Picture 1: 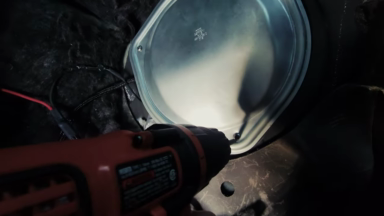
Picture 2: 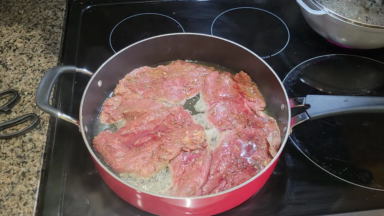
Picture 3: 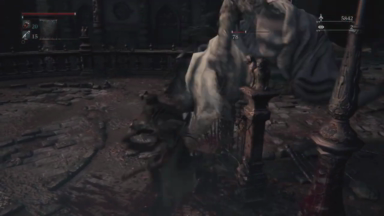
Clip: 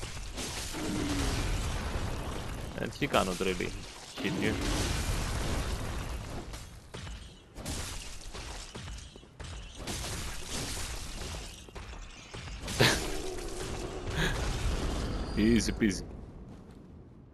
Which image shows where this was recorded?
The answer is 3